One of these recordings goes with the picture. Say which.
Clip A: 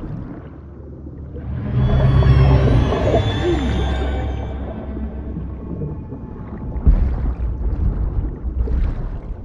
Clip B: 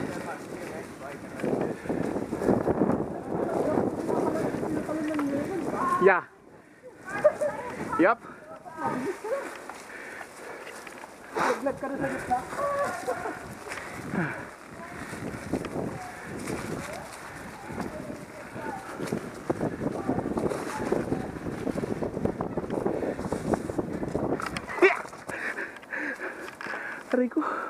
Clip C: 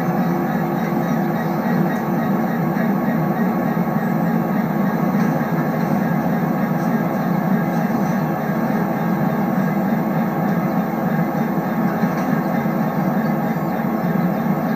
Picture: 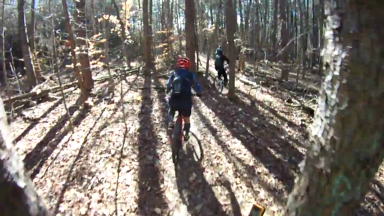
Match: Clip B